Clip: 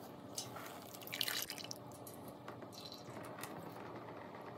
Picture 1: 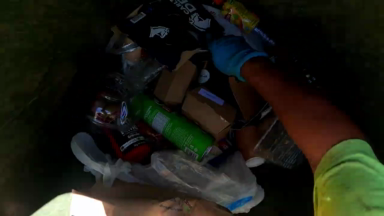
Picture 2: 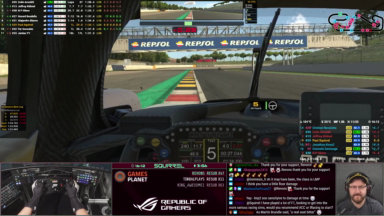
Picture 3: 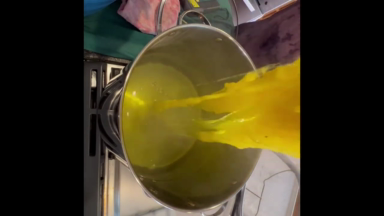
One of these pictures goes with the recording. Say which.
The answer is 3